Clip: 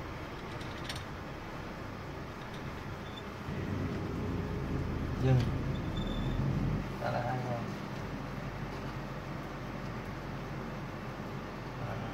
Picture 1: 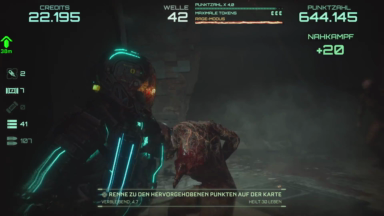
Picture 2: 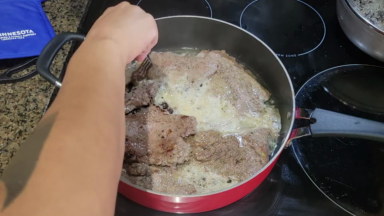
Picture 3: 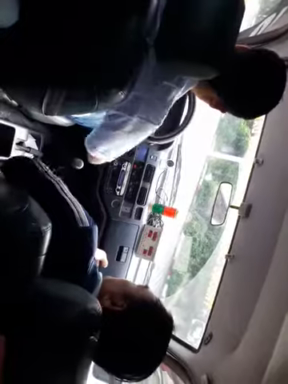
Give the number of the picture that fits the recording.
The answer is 3